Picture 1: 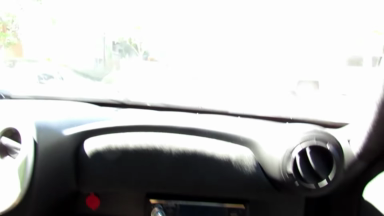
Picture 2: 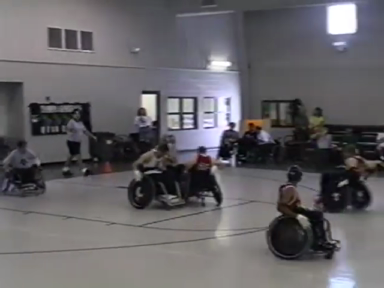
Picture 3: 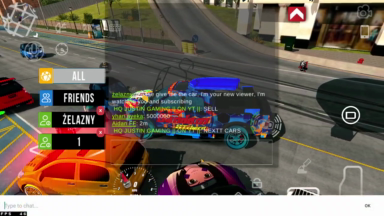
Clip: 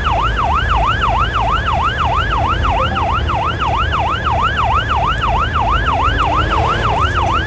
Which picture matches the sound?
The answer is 3